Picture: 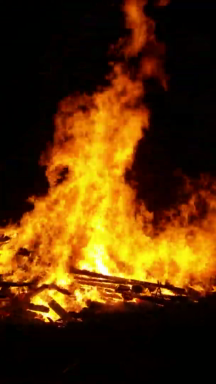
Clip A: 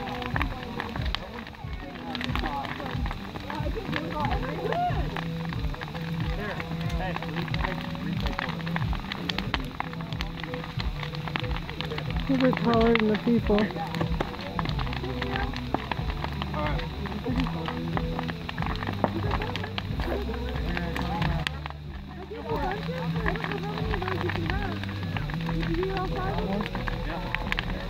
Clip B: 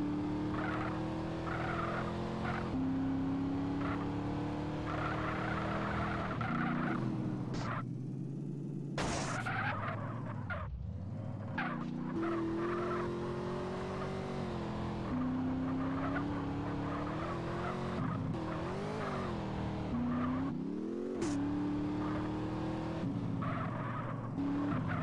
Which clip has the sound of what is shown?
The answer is A